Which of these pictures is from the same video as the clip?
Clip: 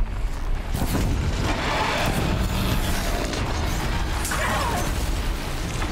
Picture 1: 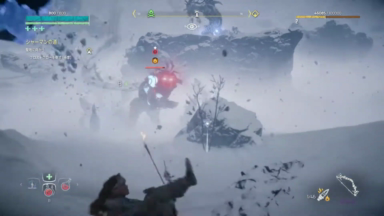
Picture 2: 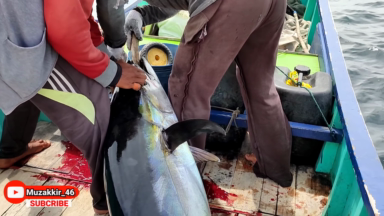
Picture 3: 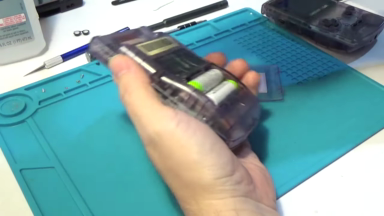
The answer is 1